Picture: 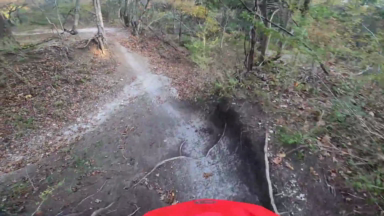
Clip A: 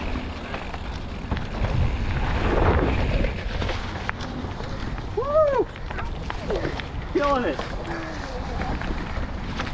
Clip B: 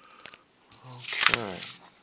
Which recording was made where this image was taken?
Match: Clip A